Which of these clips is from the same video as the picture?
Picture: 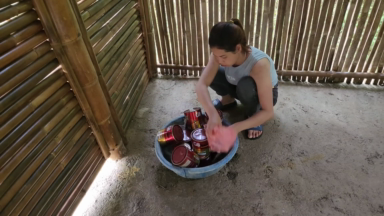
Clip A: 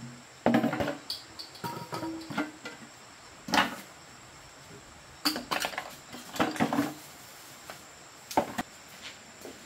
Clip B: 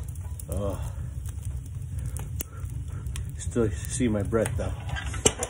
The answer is A